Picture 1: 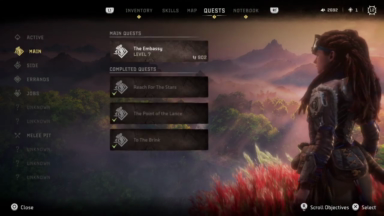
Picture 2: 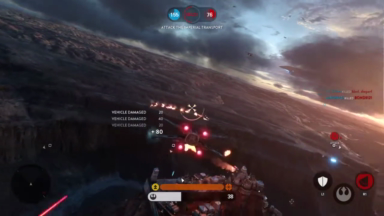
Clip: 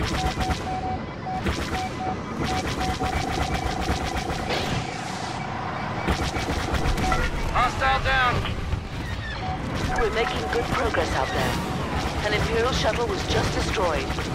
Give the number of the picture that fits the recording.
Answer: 2